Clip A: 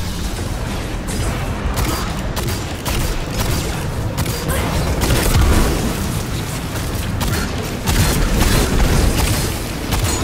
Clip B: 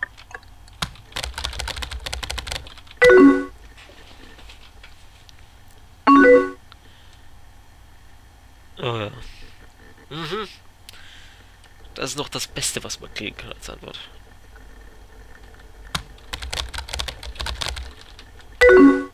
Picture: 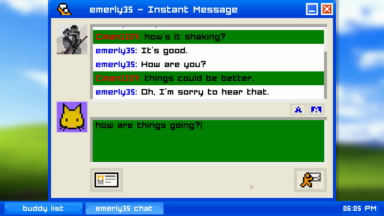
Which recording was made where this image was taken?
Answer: B